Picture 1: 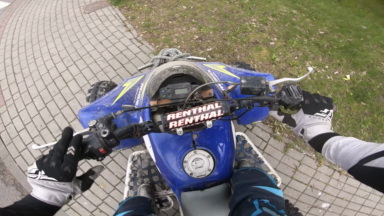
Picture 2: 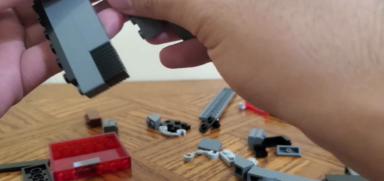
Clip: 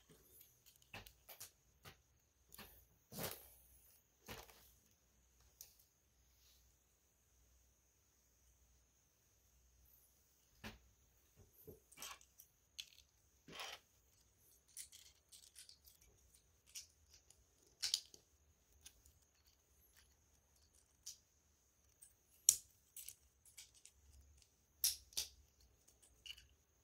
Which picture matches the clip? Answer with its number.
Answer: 2